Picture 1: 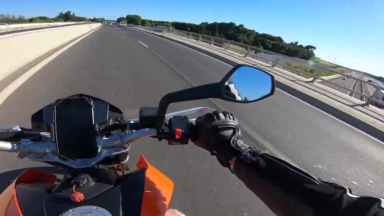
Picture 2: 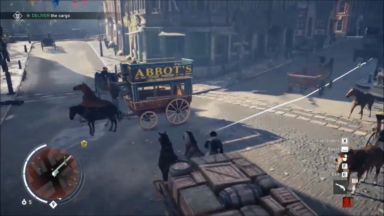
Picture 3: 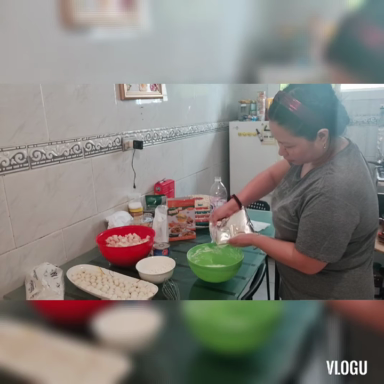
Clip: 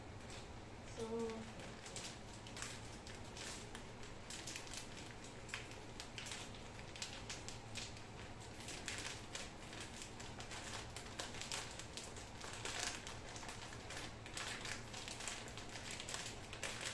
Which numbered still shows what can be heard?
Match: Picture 3